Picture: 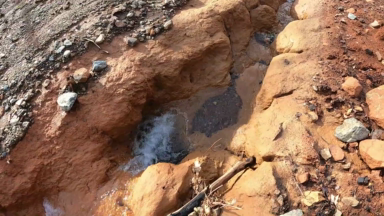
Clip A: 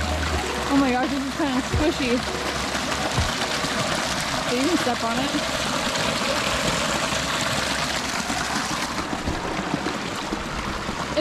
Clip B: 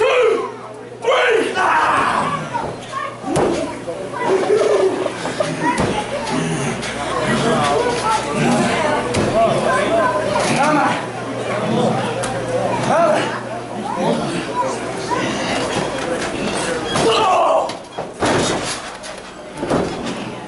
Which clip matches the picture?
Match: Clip A